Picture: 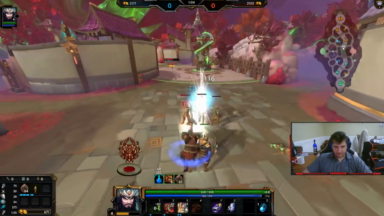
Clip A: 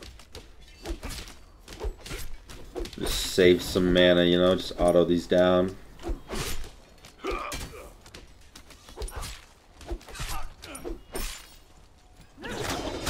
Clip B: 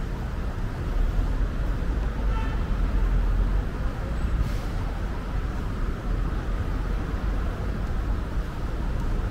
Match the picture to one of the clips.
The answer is A